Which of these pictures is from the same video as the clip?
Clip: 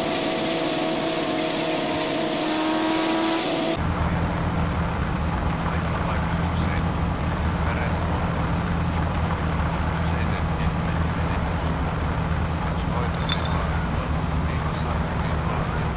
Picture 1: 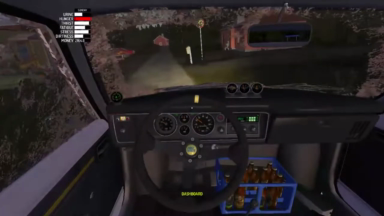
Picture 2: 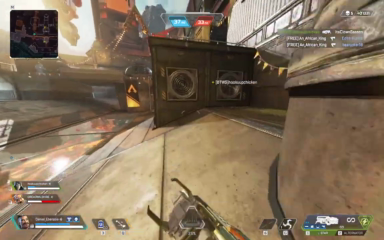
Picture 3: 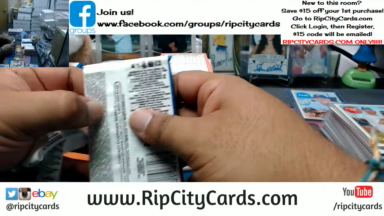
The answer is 1